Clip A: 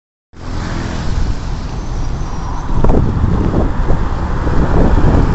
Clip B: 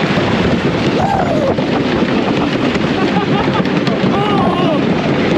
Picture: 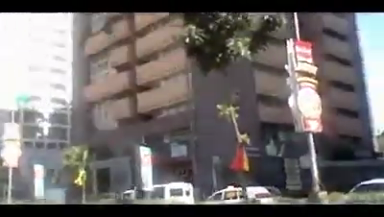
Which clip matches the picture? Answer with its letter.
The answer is A